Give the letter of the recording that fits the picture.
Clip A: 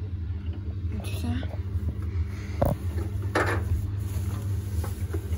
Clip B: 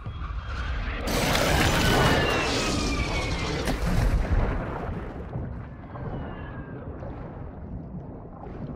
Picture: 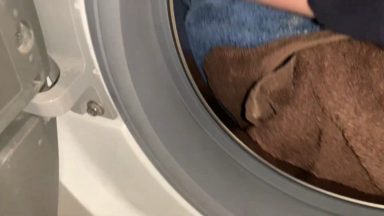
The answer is A